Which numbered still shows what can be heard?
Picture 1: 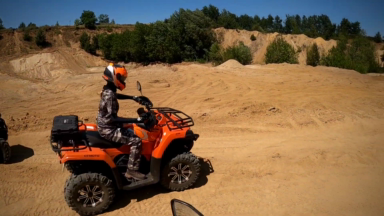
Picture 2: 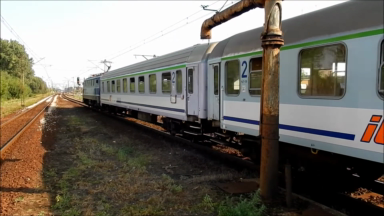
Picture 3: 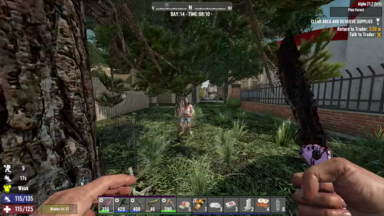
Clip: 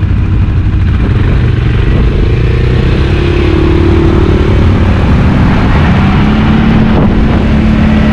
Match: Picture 1